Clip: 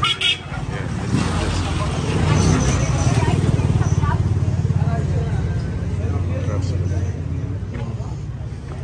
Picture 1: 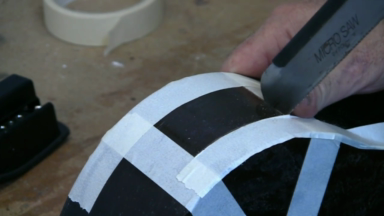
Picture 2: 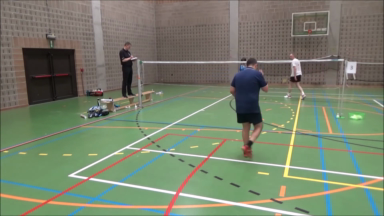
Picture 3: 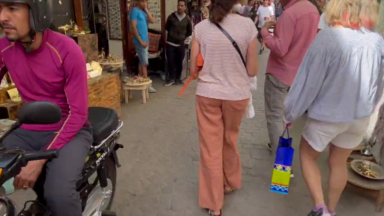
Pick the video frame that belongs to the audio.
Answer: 3